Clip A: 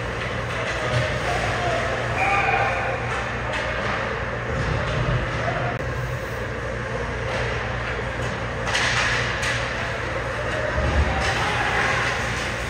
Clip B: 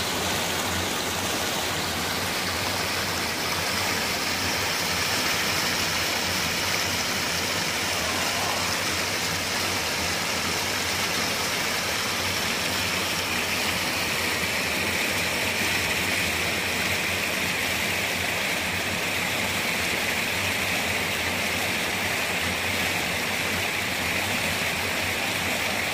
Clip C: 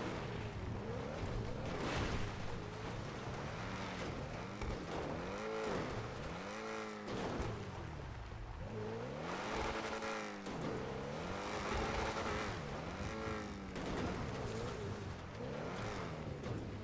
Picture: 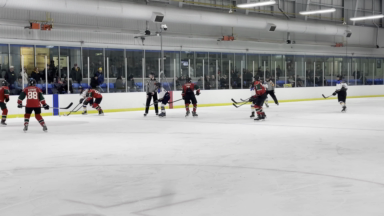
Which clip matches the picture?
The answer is A